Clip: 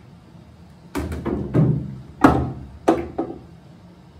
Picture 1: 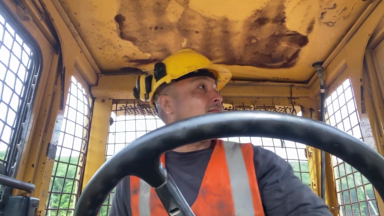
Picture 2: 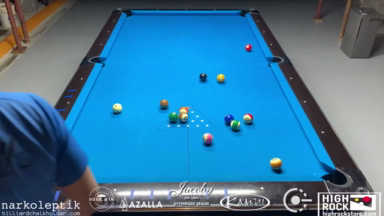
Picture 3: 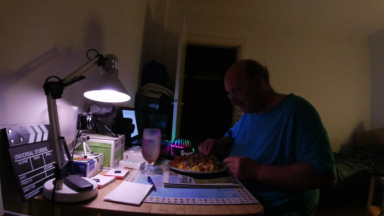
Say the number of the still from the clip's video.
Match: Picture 2